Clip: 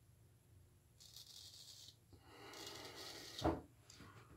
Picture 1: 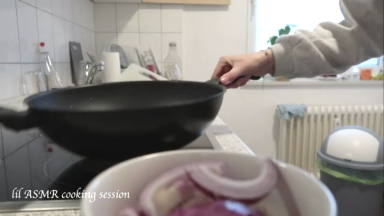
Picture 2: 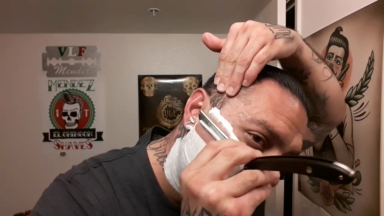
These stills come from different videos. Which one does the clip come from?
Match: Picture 2